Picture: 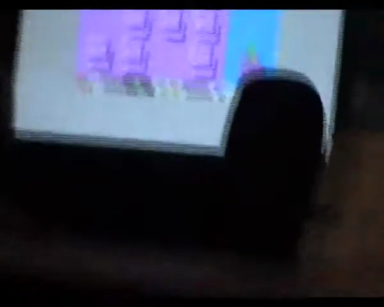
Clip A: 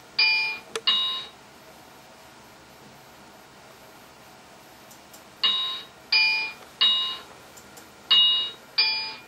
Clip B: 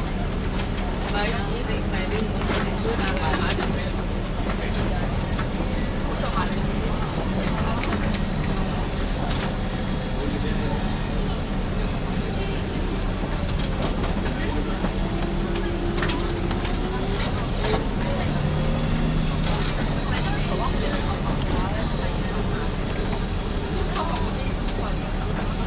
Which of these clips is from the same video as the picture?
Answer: A